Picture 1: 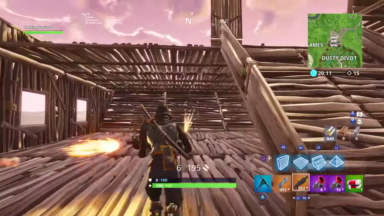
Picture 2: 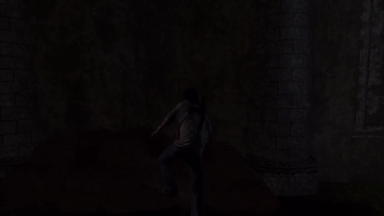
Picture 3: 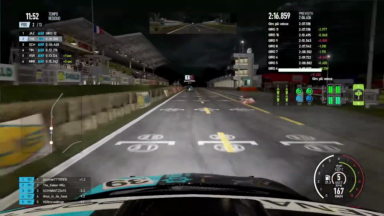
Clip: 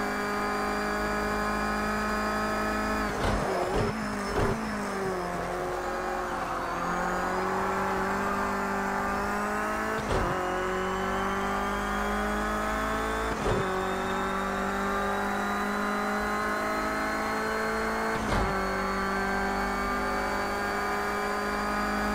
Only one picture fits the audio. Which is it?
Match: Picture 3